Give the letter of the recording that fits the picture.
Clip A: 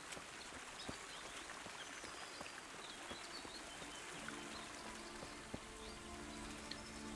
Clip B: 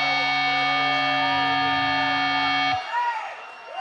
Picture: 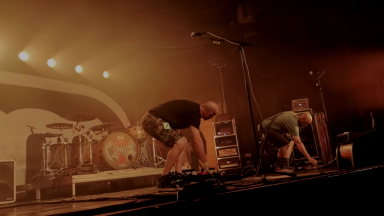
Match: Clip B